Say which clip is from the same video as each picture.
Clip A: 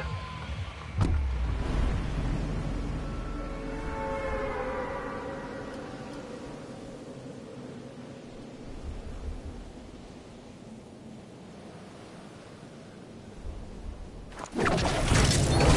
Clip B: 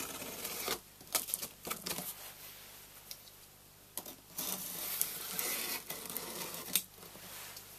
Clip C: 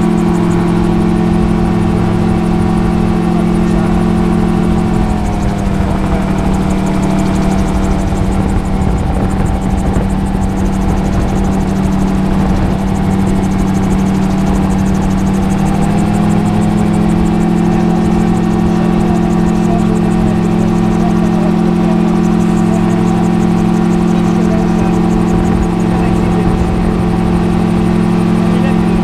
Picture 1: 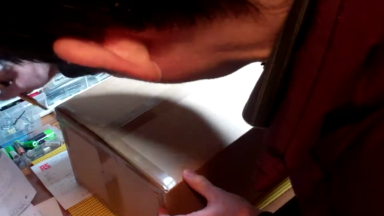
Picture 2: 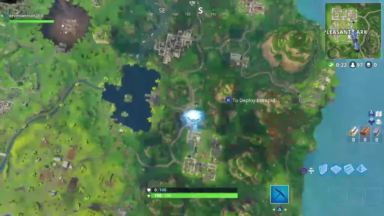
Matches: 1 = B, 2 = A